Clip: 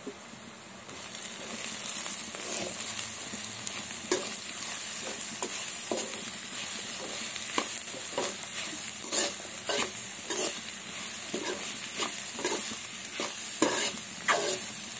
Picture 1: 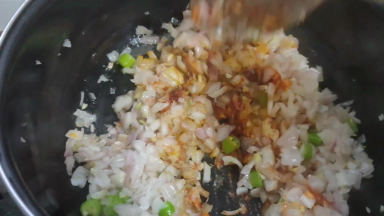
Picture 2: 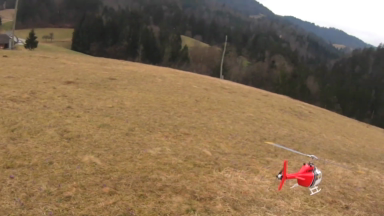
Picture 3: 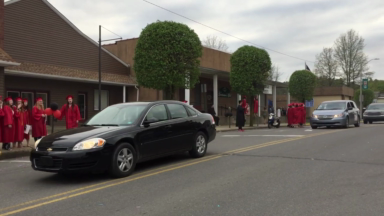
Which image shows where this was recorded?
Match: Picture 1